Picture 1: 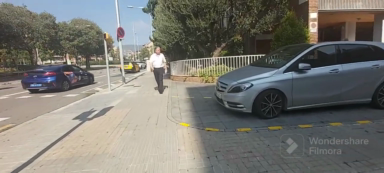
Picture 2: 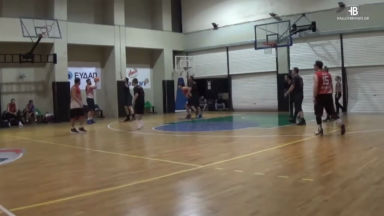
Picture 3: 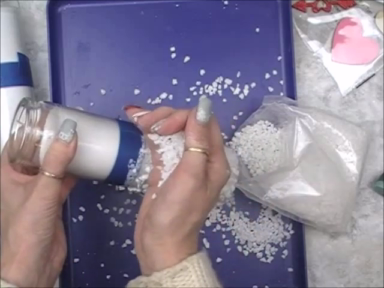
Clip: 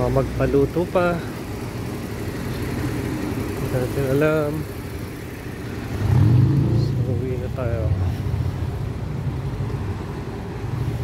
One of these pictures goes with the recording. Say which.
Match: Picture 1